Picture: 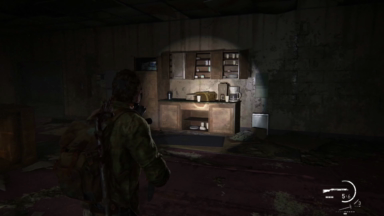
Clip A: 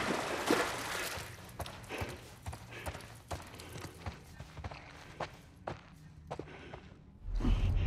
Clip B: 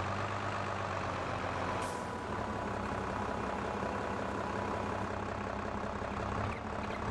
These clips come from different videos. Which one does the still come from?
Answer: A